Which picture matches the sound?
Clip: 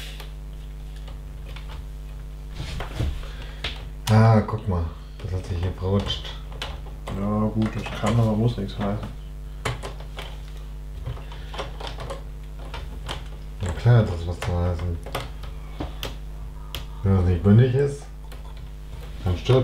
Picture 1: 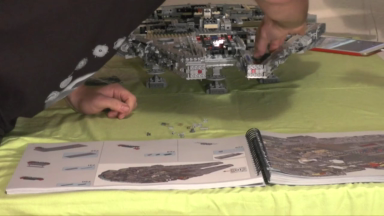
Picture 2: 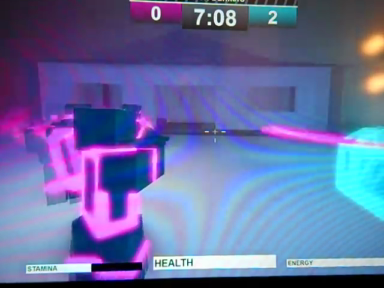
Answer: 1